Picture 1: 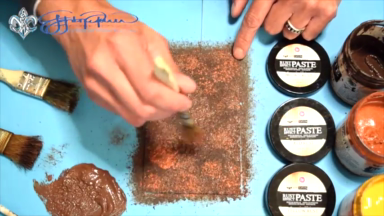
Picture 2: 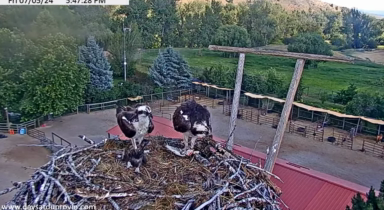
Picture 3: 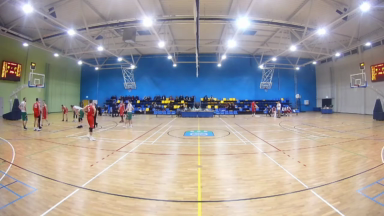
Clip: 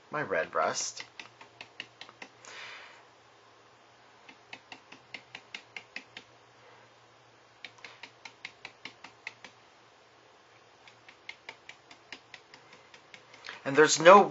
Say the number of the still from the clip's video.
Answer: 1